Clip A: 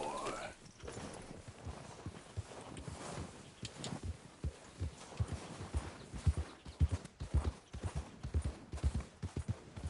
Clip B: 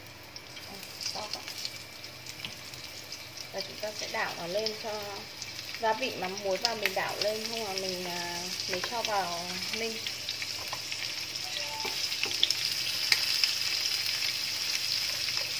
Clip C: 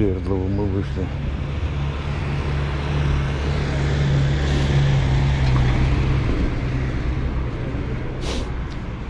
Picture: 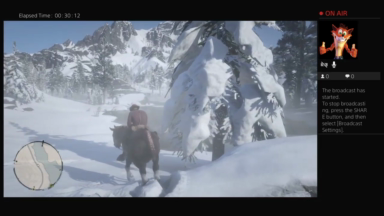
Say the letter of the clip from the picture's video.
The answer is A